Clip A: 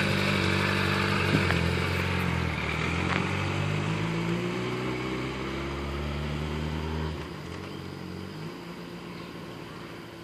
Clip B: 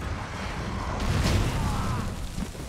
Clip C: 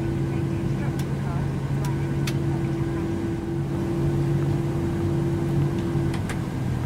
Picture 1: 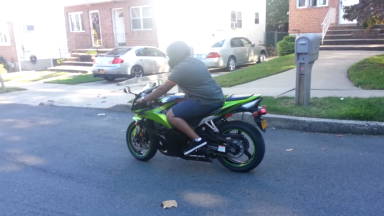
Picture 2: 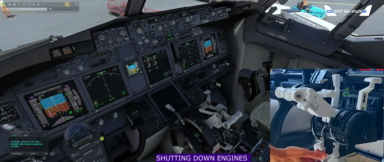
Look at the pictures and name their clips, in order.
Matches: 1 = A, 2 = C